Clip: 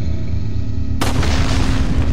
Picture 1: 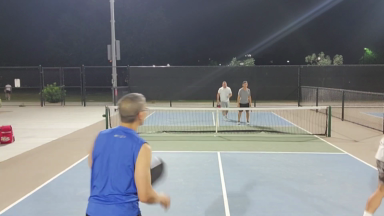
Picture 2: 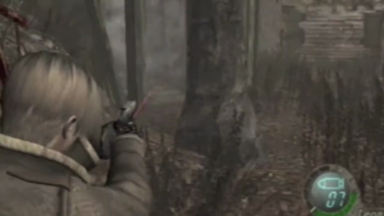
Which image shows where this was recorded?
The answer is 2